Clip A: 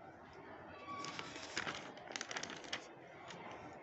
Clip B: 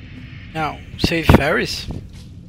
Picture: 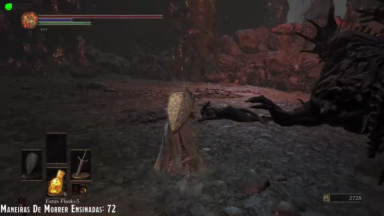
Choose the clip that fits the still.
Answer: B